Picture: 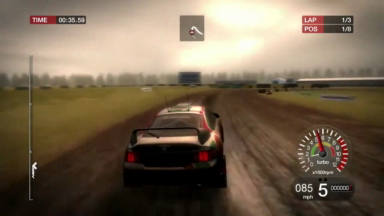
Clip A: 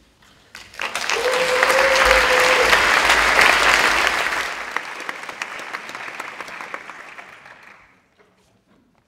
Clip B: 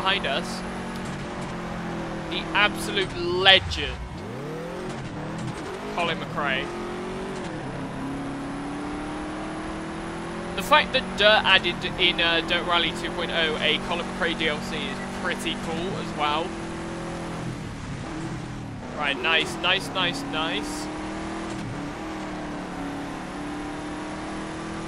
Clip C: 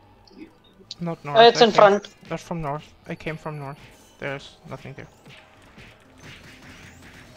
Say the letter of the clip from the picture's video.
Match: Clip B